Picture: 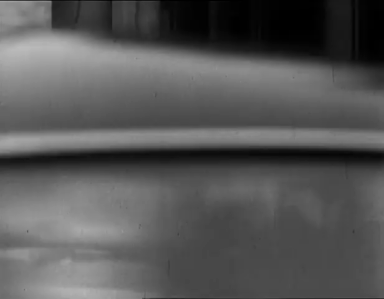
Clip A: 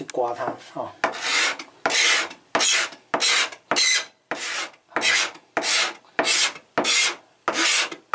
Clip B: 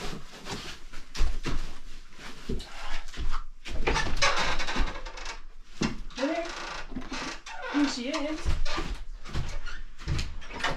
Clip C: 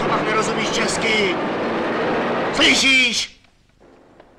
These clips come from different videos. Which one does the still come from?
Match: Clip C